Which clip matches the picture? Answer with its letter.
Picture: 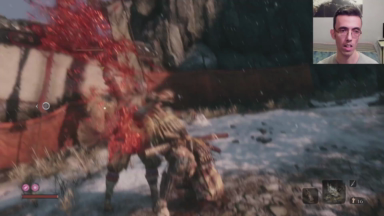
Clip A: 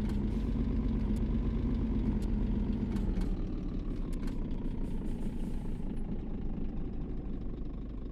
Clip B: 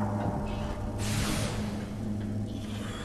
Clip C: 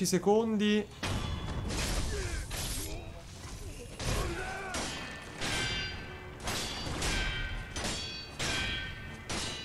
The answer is C